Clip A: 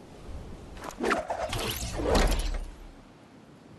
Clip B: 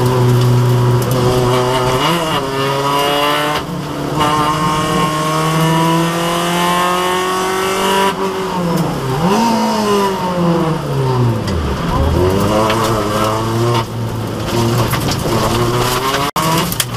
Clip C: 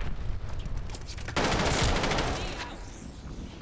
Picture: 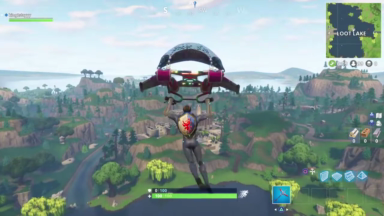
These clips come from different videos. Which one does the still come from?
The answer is A